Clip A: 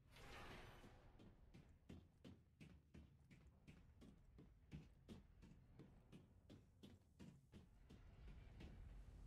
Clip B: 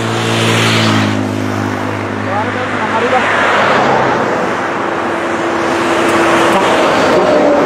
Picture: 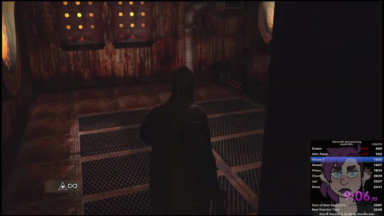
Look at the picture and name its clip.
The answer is A